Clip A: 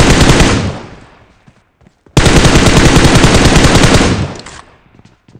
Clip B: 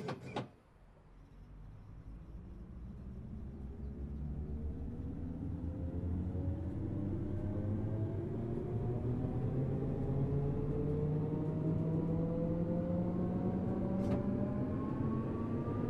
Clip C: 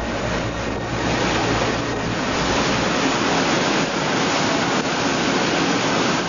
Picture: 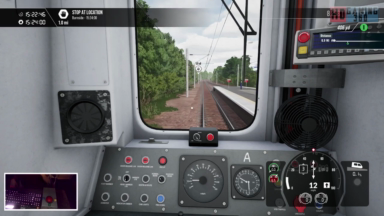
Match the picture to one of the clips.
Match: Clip B